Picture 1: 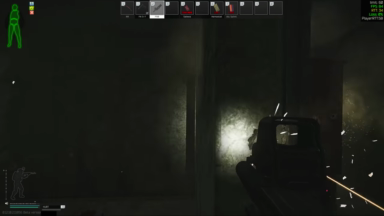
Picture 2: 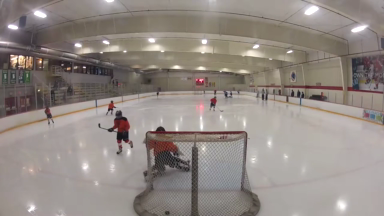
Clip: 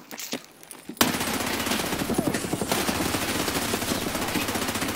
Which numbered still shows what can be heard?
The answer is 1